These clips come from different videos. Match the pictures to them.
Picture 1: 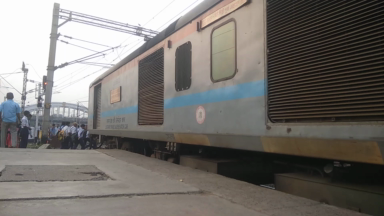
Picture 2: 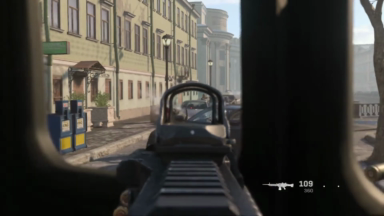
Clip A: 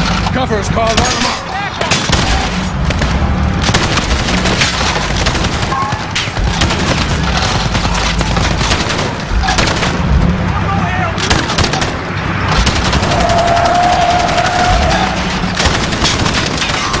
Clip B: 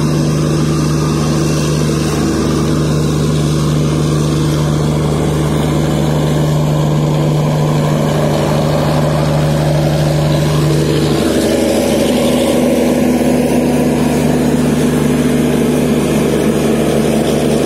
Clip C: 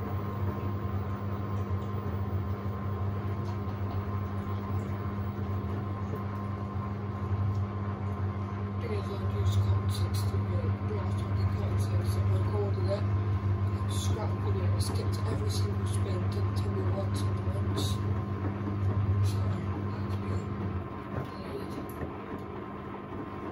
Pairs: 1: B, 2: A